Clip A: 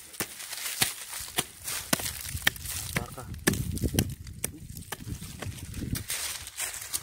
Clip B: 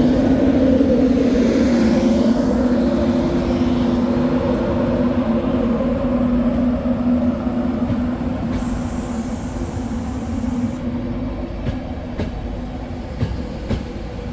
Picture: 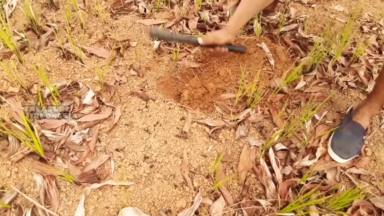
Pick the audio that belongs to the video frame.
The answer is A